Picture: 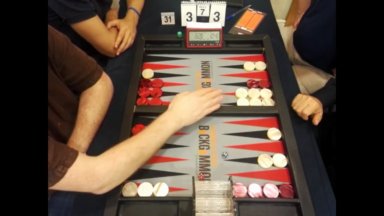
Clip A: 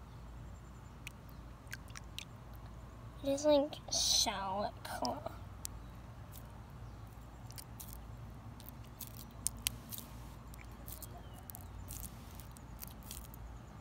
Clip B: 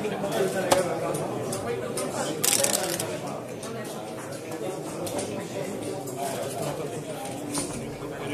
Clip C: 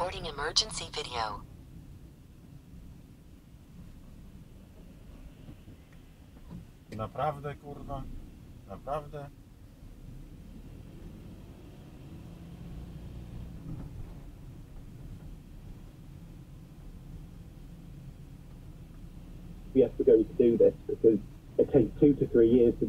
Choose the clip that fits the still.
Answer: B